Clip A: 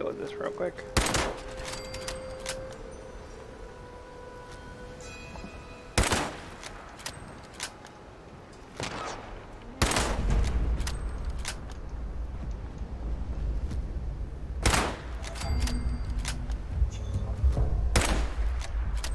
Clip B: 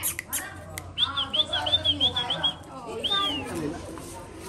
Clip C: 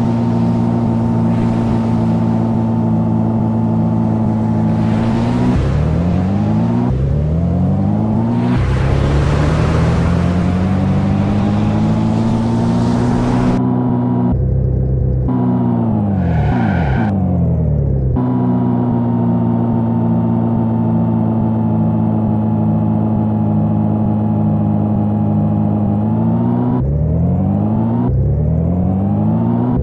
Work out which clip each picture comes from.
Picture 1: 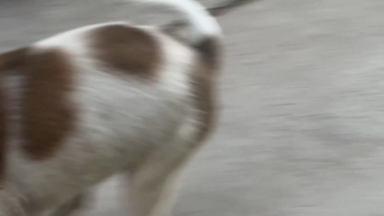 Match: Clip B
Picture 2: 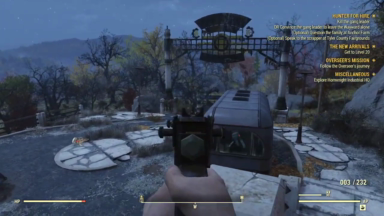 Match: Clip A